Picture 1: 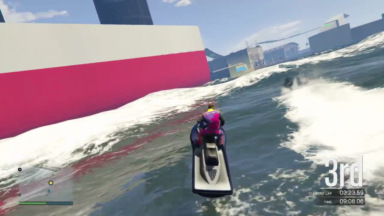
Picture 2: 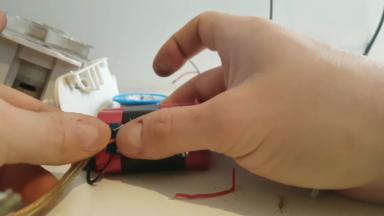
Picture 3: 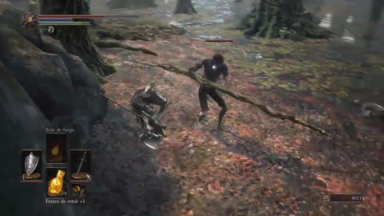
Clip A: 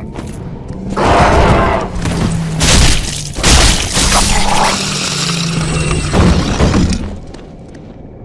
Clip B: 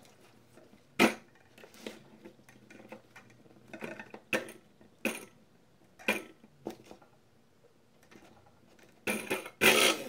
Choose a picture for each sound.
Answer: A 3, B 2